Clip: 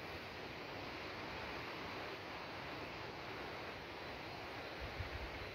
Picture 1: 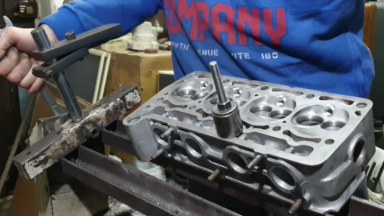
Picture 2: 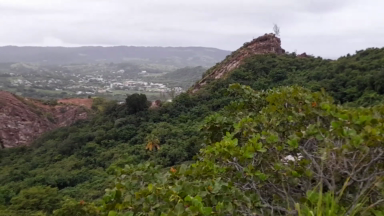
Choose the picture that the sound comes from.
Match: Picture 2